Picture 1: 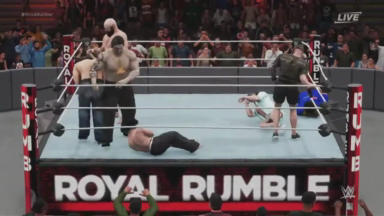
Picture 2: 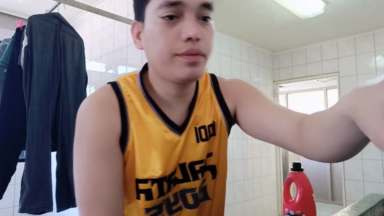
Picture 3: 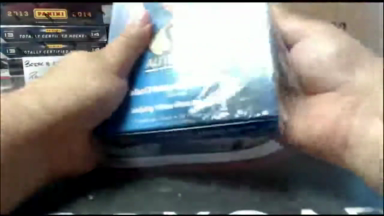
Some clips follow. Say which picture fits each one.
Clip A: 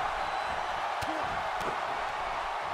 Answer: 1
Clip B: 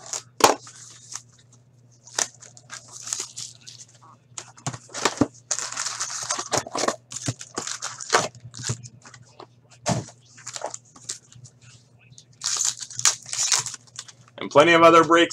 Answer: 3